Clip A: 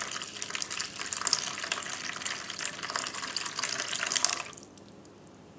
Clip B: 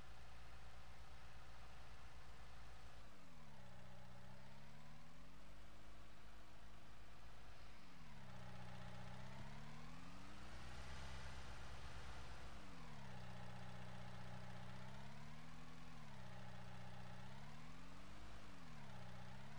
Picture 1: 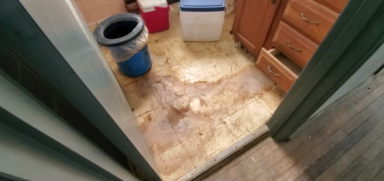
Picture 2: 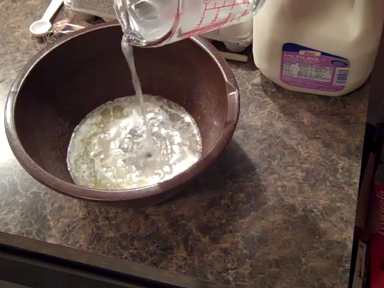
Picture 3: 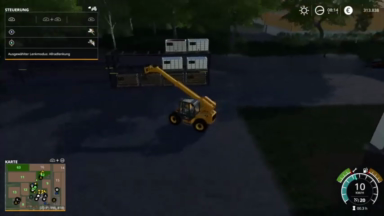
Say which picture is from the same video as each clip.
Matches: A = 2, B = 3